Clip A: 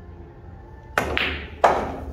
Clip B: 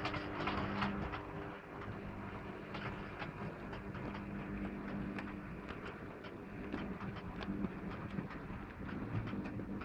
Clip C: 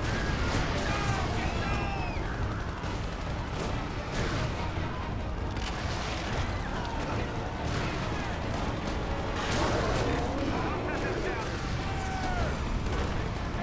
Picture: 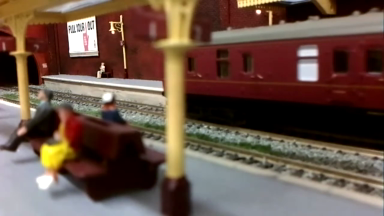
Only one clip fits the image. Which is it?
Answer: B